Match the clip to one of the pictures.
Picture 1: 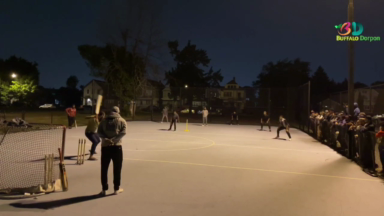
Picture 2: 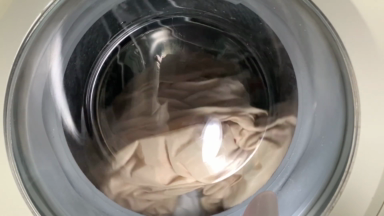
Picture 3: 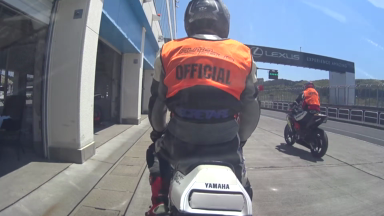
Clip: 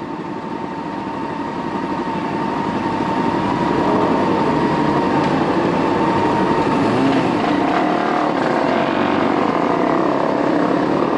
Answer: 3